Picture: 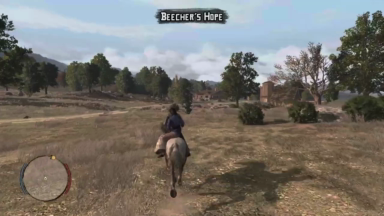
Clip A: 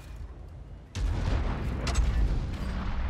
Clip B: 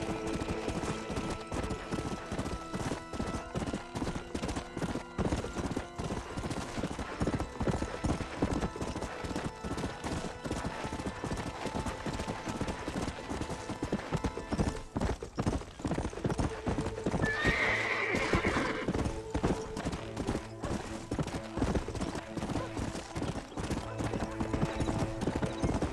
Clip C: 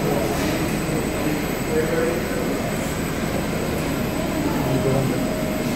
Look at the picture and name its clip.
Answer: B